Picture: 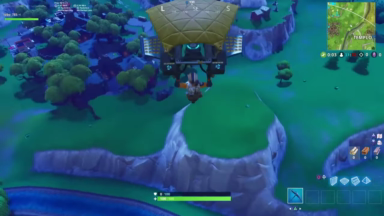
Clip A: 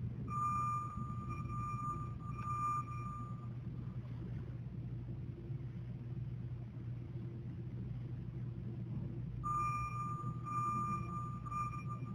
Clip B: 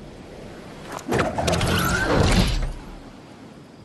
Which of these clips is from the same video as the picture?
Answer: B